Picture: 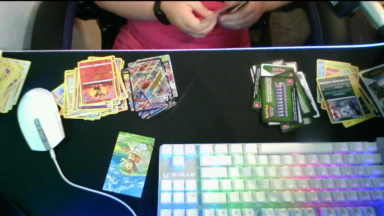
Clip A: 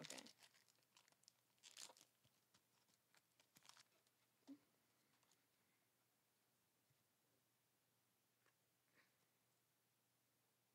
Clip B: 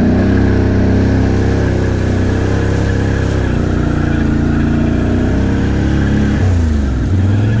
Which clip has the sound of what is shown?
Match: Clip A